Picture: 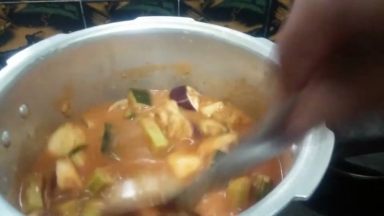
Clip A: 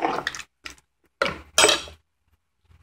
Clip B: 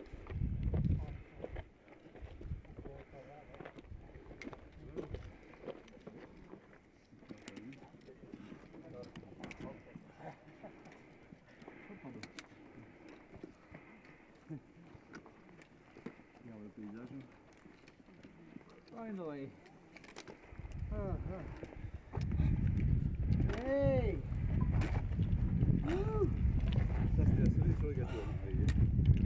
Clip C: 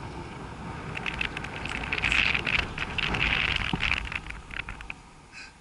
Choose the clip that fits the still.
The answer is A